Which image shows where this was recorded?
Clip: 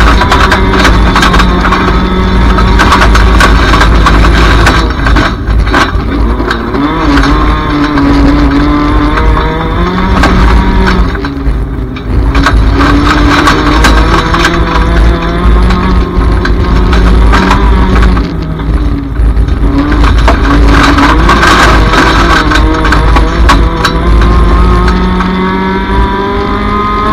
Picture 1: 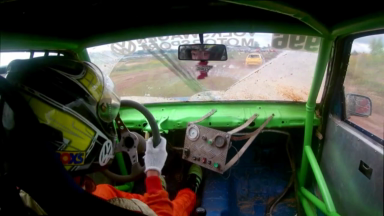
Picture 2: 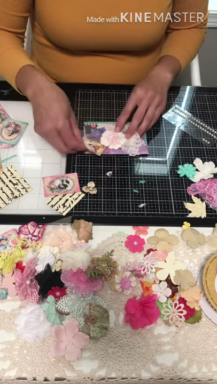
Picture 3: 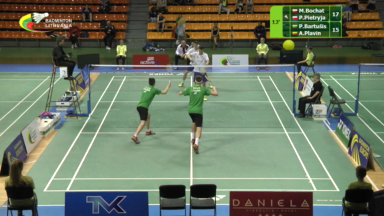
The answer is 1